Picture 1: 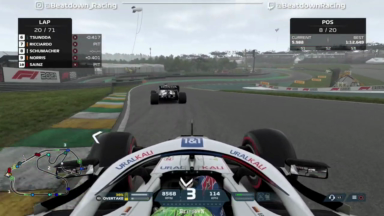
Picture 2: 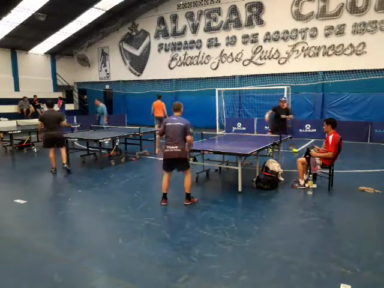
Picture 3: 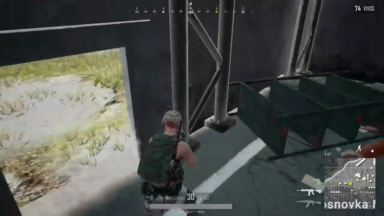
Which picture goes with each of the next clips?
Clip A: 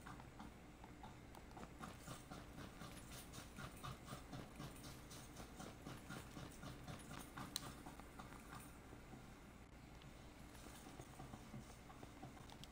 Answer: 3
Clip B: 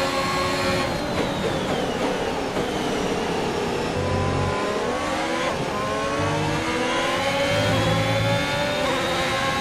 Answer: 1